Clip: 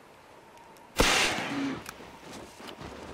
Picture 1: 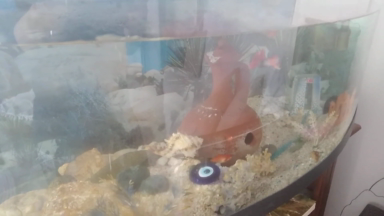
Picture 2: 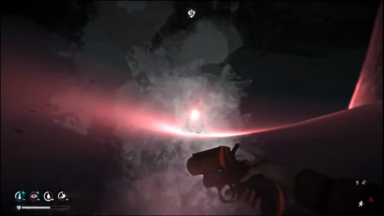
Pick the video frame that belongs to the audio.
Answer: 2